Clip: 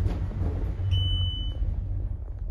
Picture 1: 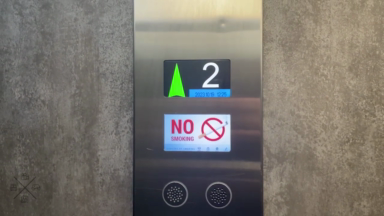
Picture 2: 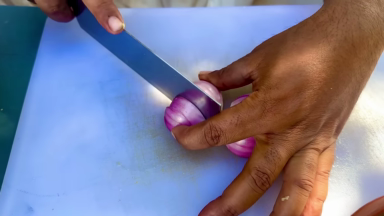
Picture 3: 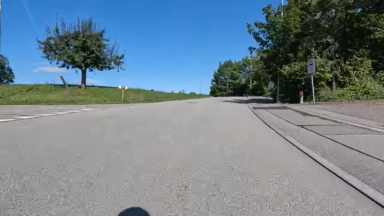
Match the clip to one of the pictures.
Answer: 1